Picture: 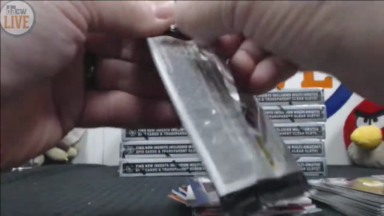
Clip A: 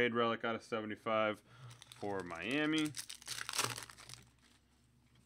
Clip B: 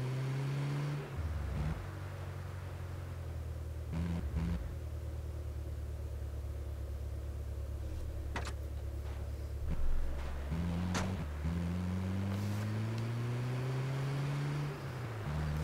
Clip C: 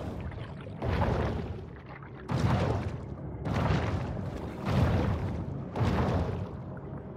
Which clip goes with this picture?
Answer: A